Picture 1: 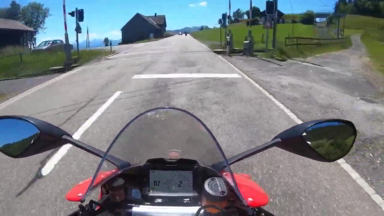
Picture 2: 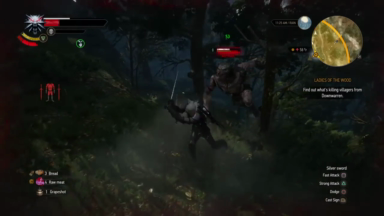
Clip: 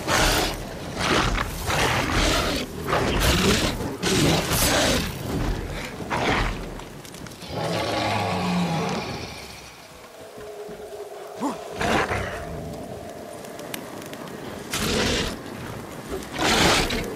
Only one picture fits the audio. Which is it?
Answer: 2